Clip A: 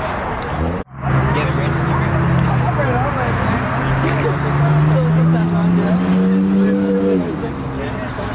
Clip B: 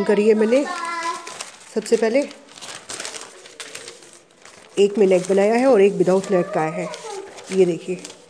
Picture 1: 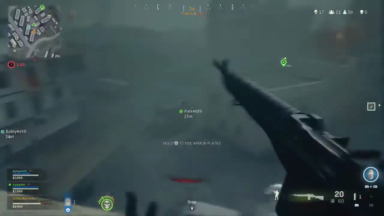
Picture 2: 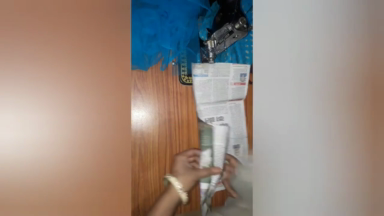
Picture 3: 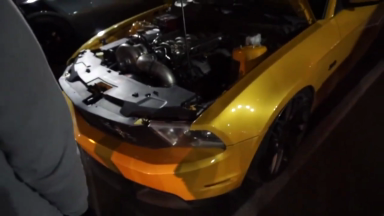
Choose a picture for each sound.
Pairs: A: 3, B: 2